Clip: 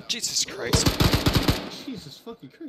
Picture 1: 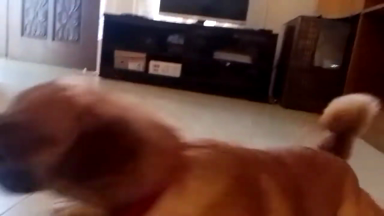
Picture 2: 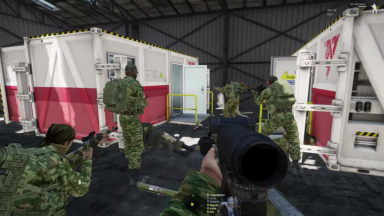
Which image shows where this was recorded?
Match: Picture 2